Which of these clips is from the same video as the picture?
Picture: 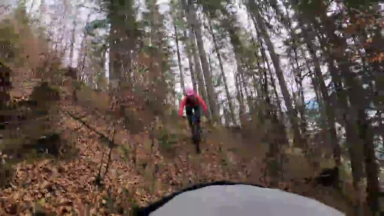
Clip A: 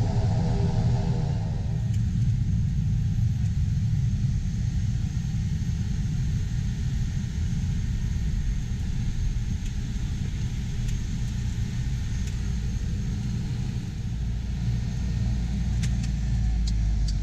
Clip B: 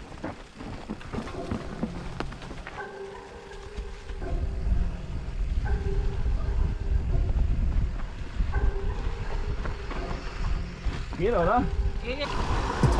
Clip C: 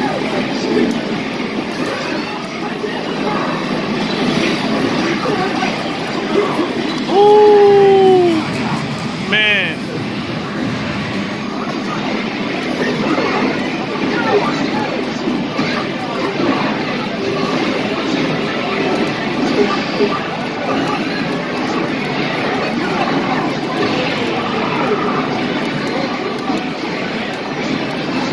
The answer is B